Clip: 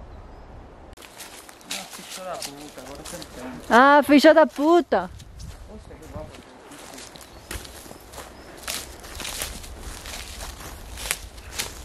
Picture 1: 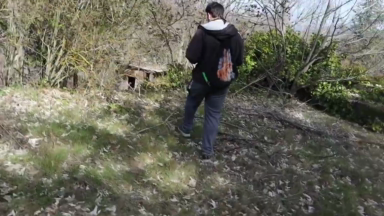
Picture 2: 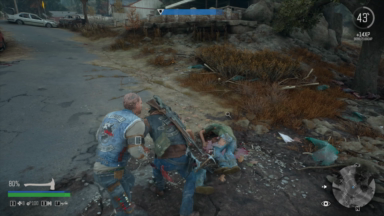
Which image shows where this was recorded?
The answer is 1